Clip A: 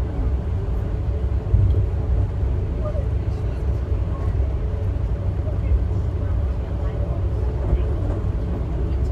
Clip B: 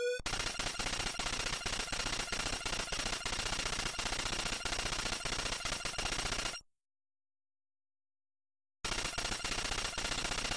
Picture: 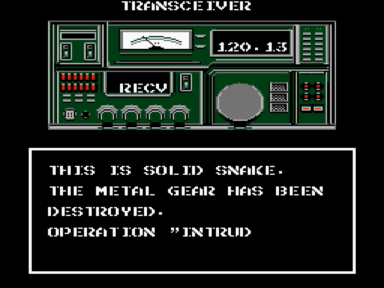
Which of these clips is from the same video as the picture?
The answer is B